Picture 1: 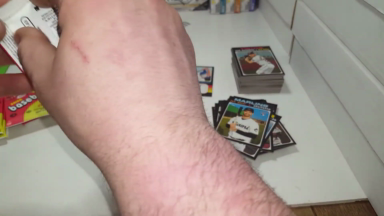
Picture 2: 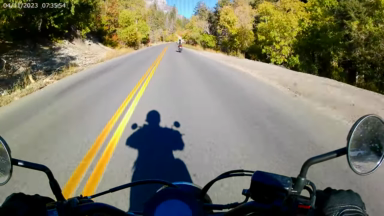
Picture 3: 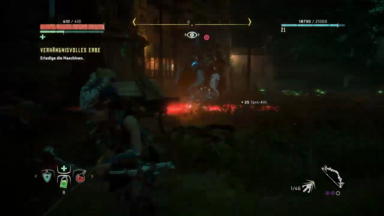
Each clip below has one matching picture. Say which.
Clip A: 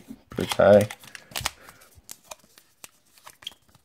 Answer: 1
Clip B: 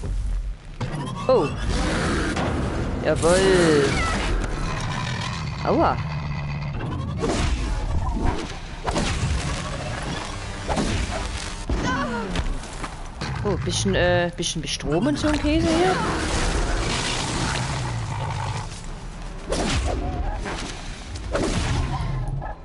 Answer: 3